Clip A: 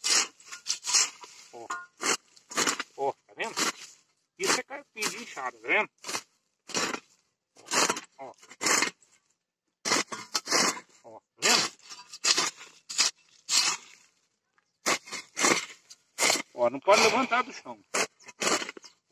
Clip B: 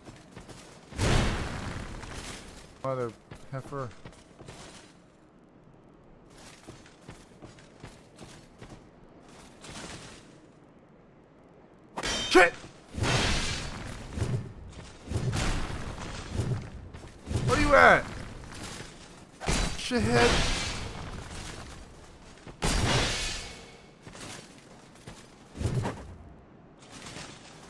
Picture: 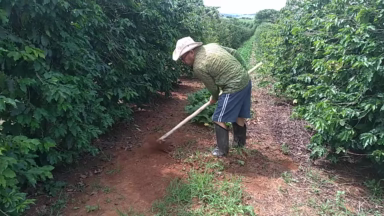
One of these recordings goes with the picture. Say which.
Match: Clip A